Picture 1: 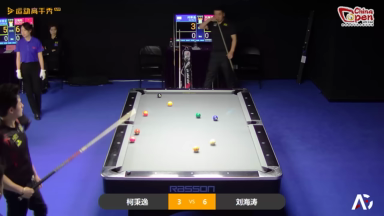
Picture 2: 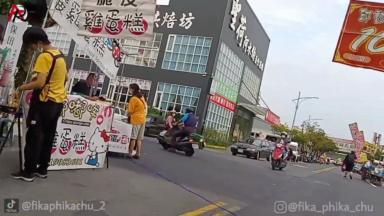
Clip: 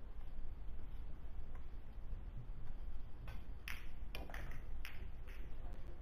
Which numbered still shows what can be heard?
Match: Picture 1